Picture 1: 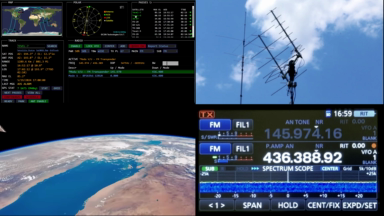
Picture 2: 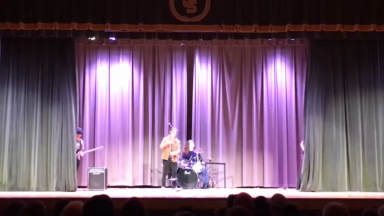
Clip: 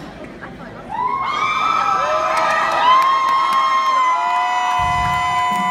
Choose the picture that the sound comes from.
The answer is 2